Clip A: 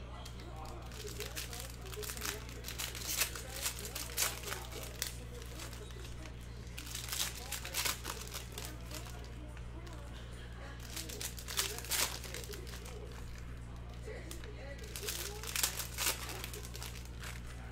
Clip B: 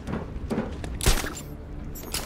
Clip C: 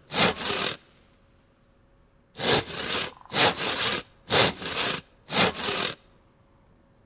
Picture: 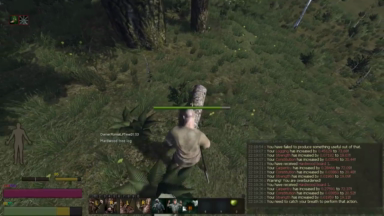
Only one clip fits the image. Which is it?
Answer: C